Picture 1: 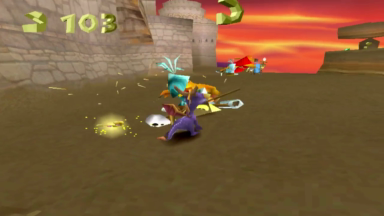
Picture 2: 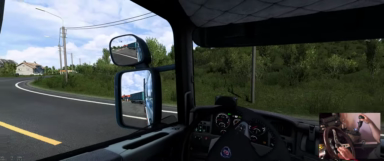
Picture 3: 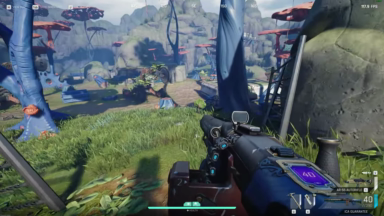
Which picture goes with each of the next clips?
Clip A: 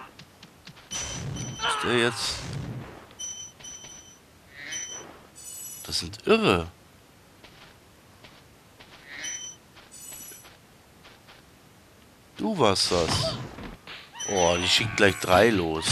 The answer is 1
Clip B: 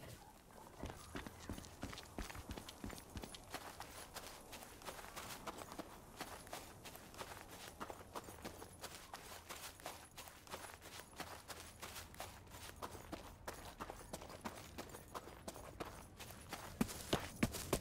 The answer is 3